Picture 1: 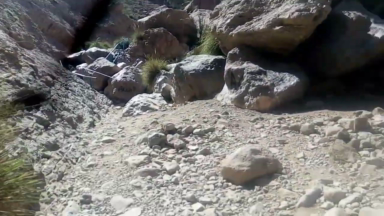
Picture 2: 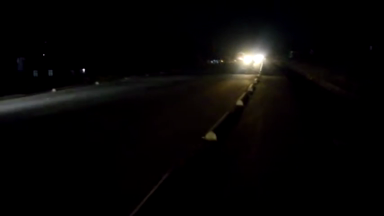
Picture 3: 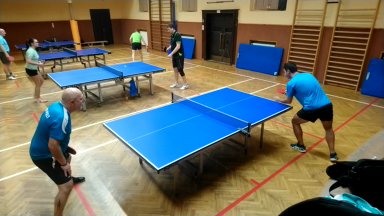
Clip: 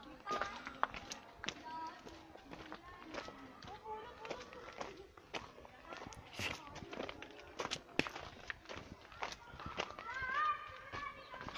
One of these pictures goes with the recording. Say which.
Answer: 1